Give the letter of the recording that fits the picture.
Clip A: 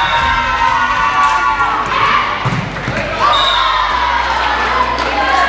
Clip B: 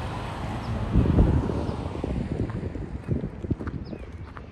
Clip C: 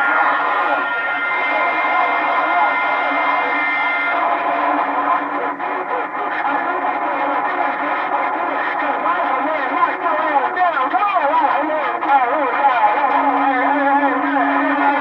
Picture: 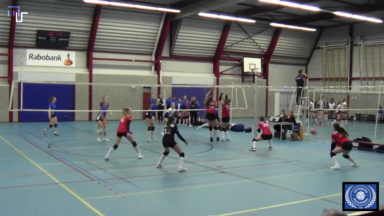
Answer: A